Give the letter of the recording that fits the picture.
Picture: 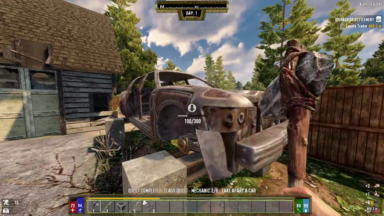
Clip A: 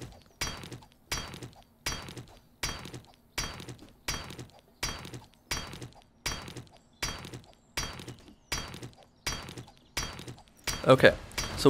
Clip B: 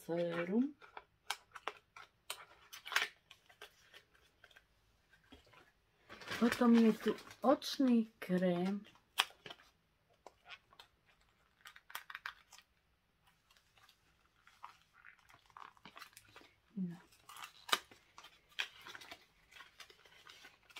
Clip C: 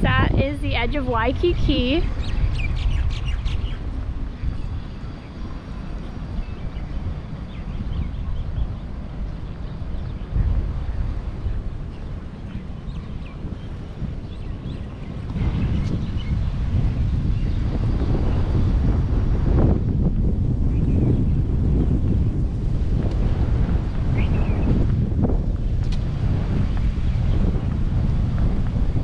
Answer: A